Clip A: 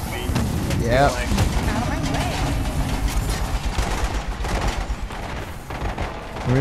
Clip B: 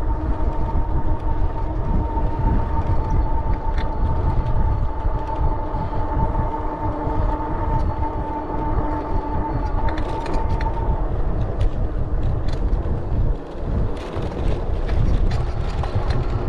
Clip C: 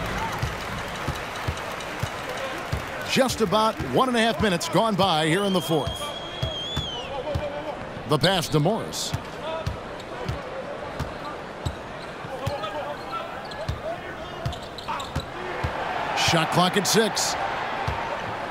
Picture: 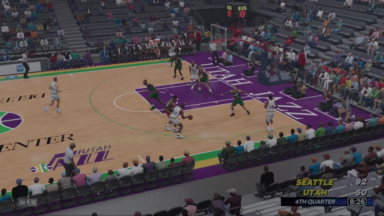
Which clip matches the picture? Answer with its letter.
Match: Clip C